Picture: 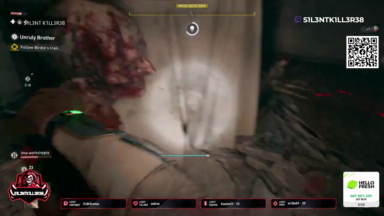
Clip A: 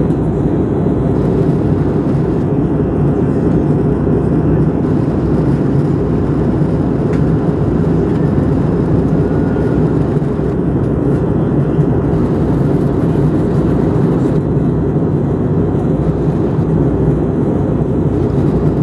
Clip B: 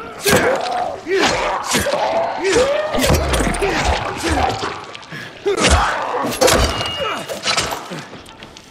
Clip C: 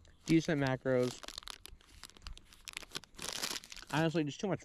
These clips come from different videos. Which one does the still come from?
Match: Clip B